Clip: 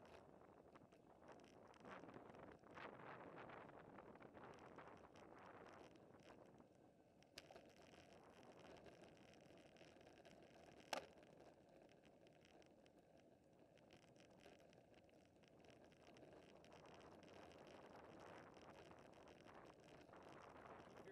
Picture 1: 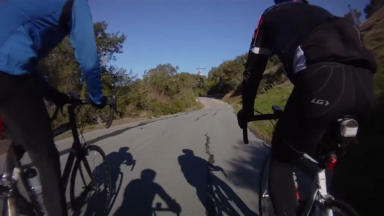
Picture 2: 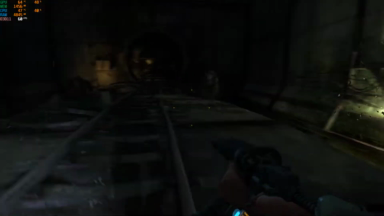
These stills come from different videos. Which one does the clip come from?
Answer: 1